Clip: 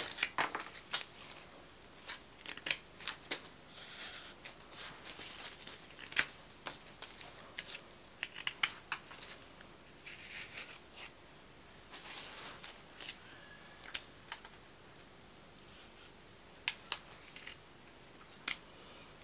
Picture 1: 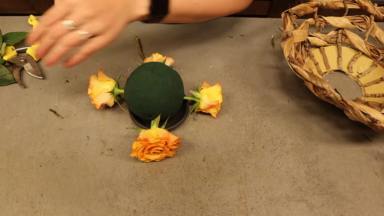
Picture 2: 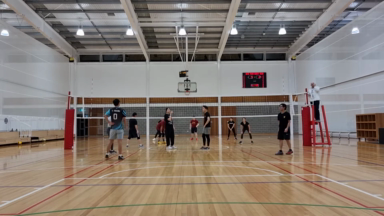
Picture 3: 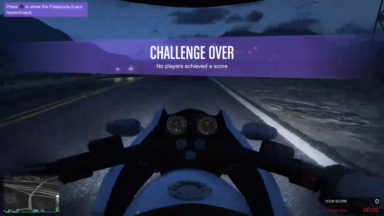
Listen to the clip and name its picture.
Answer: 1